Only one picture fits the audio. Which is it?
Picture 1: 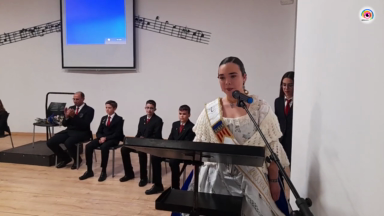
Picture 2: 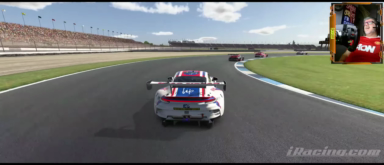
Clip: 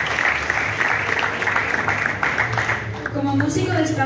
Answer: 1